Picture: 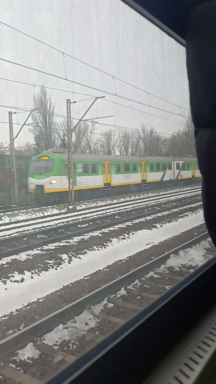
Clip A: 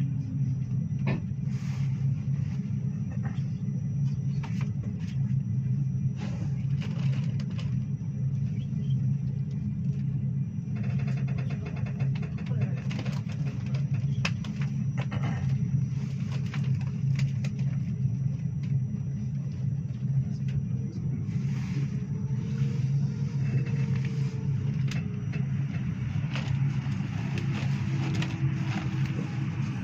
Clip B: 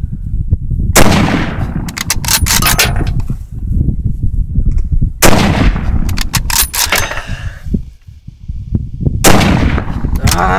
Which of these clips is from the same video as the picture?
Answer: A